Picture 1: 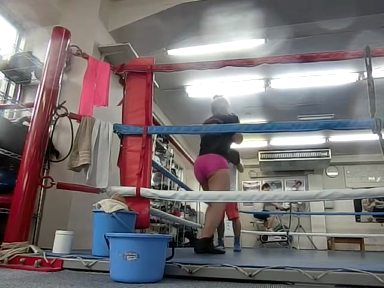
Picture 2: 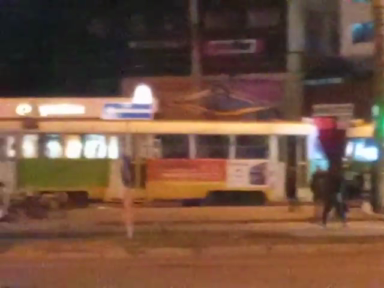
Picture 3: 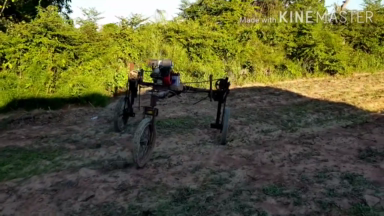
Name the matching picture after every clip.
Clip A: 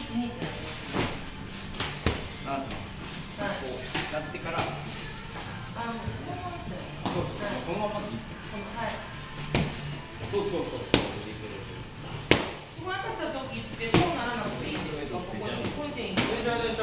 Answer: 1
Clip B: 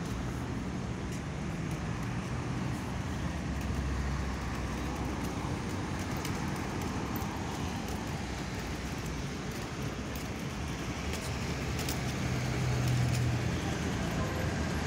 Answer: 2